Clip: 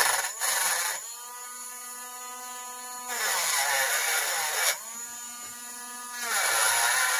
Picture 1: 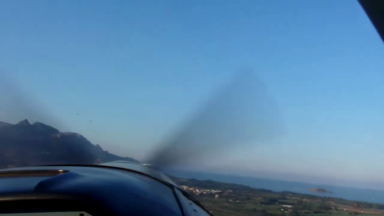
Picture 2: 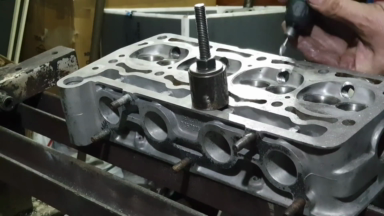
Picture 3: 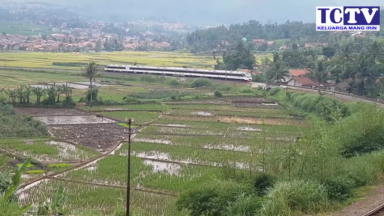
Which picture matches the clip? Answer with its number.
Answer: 2